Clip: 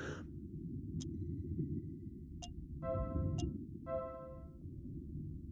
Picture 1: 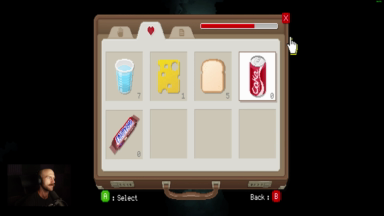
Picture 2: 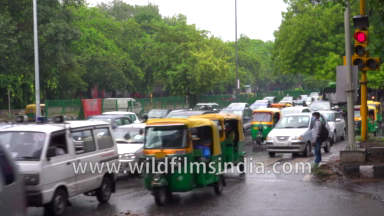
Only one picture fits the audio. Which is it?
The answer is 1